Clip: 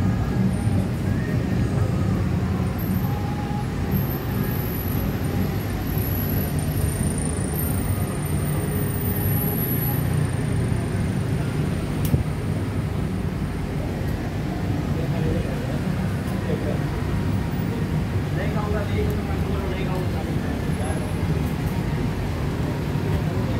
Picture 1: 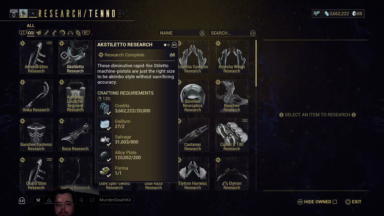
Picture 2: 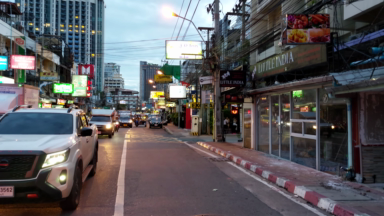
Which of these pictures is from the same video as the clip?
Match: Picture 2